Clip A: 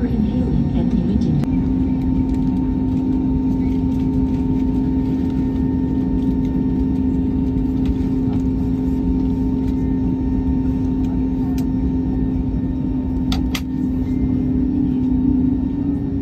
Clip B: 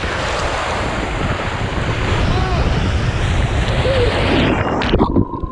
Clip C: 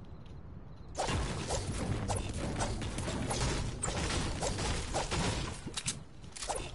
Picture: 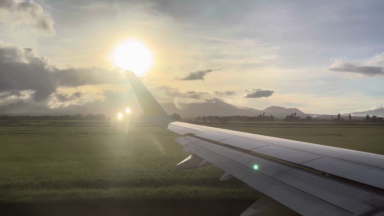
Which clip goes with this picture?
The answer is A